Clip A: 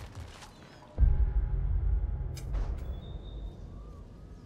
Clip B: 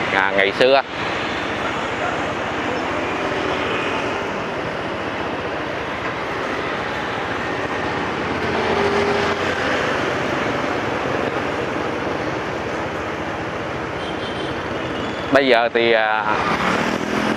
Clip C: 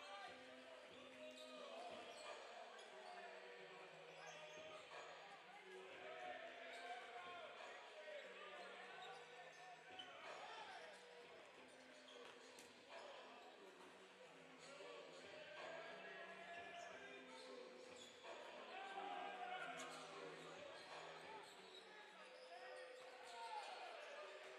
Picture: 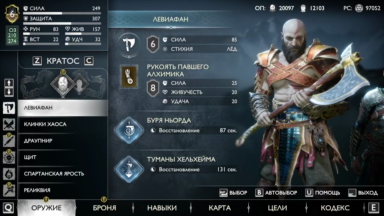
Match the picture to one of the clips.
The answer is A